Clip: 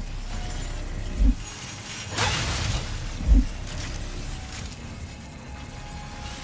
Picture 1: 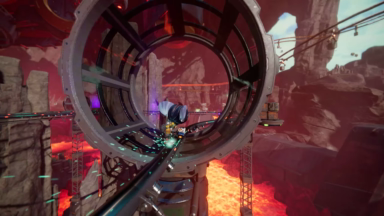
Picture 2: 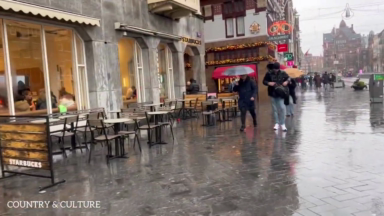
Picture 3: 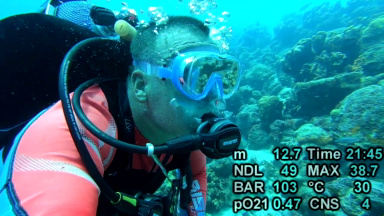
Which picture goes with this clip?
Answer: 1